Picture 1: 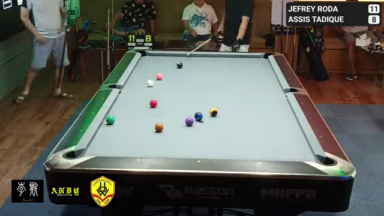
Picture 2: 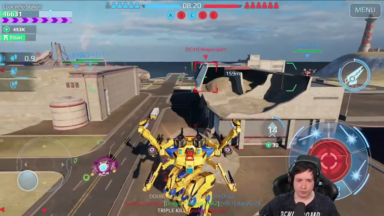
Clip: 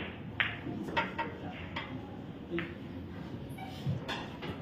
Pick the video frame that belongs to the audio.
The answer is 1